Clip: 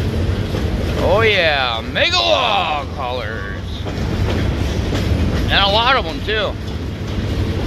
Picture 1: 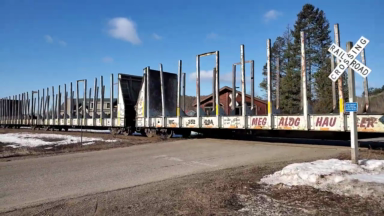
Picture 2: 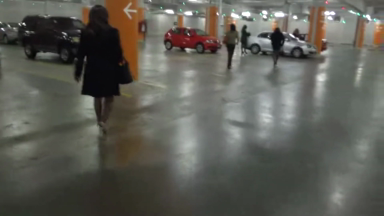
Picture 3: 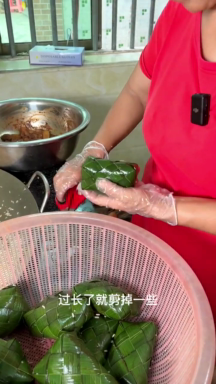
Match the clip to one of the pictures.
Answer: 1